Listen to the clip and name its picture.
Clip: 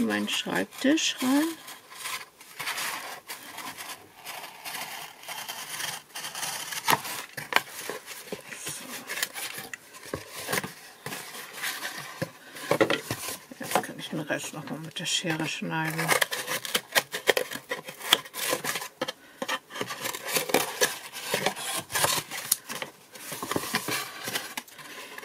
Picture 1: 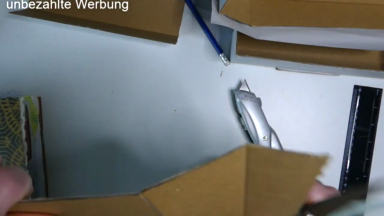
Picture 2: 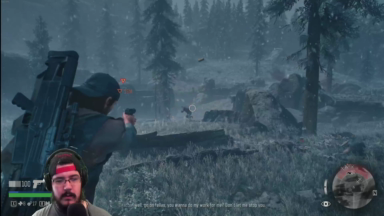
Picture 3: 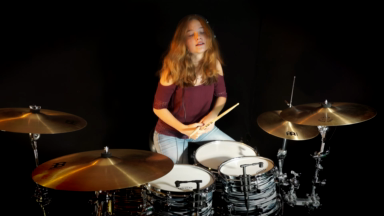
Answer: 1